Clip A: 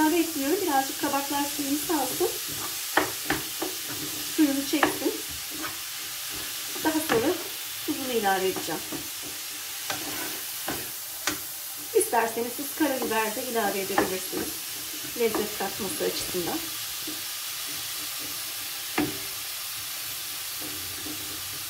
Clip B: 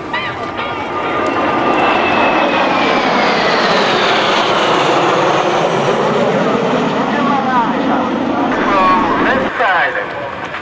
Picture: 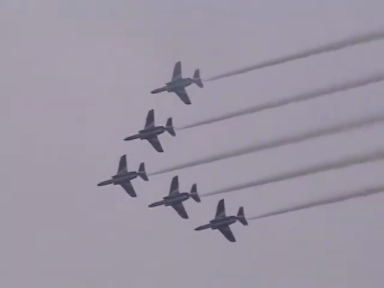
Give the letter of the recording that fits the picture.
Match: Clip B